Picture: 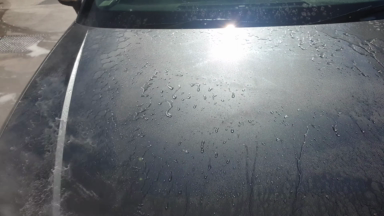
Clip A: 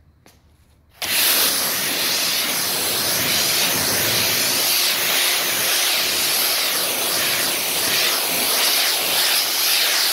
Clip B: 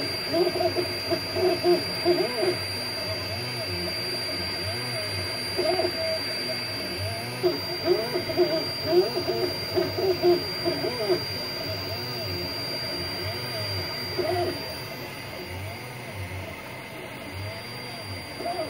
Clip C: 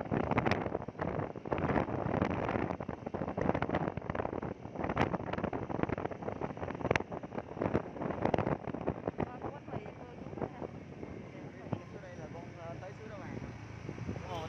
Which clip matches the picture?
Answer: A